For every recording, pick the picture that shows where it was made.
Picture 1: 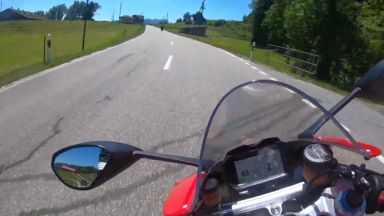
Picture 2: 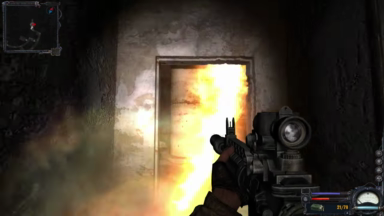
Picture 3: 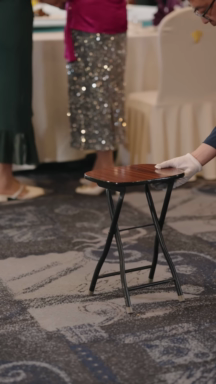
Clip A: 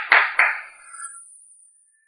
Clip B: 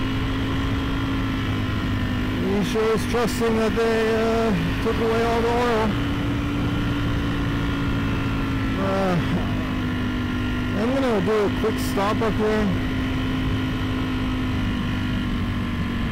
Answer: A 3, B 1